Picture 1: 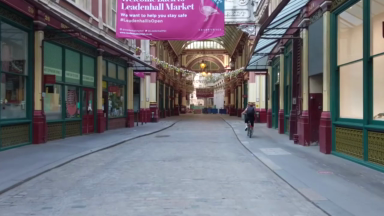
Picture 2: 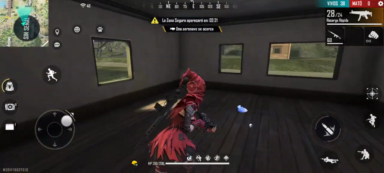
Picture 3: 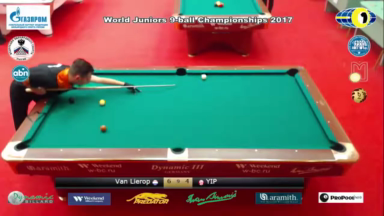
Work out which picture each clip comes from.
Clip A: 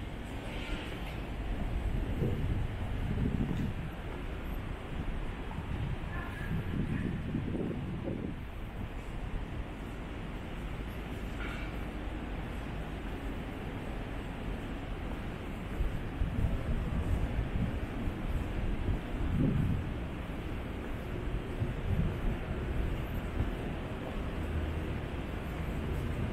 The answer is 1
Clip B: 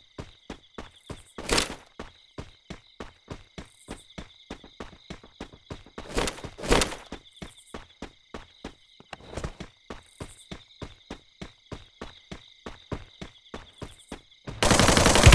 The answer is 2